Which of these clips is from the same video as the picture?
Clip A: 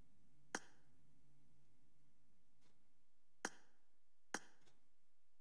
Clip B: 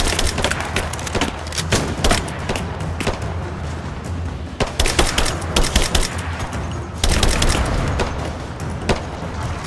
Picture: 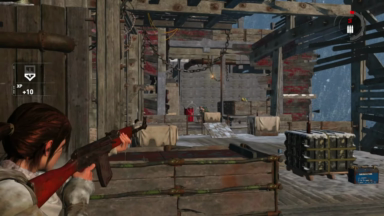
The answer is B